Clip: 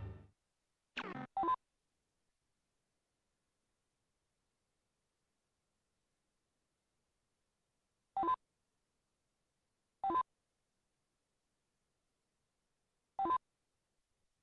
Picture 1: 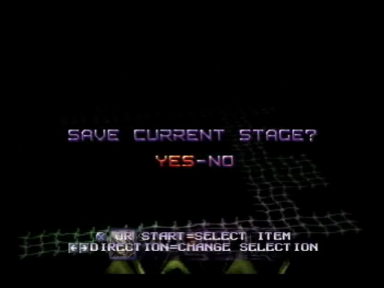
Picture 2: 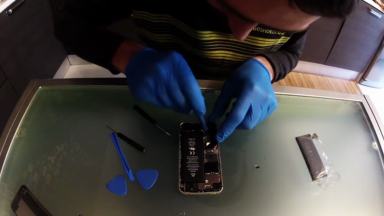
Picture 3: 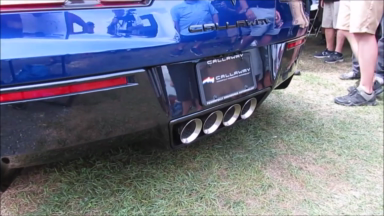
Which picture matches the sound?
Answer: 1